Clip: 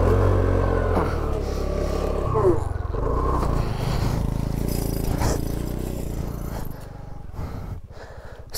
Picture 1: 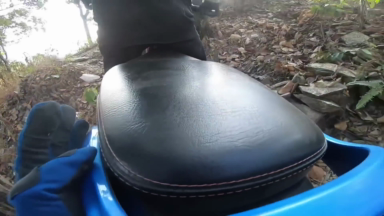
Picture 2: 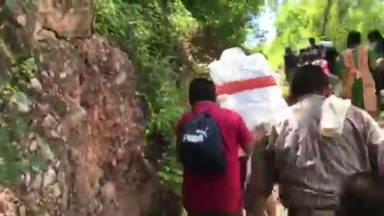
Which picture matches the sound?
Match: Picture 1